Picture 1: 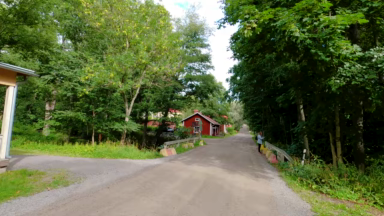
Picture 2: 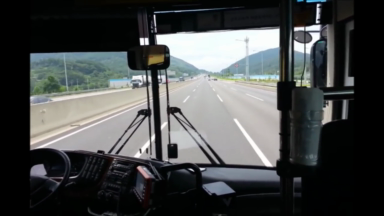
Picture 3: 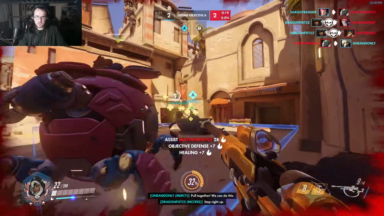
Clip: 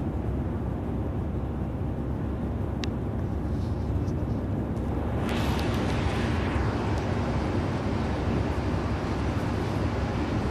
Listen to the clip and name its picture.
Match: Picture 2